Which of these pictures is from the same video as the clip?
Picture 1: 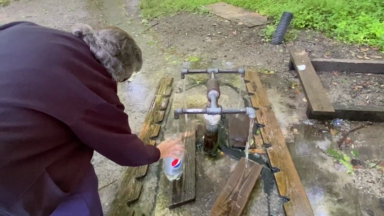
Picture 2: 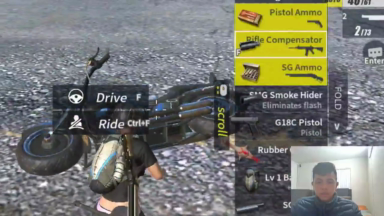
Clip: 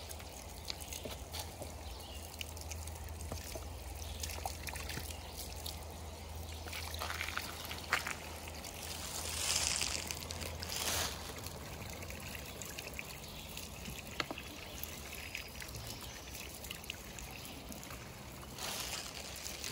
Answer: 1